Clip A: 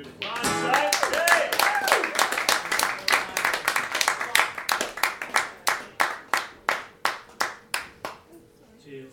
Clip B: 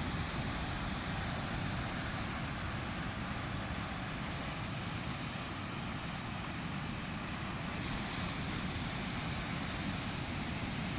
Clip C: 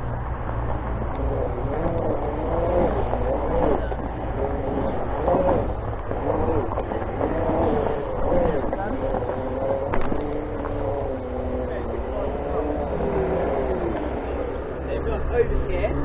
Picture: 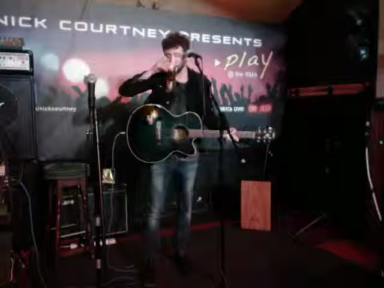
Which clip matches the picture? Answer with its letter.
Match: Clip A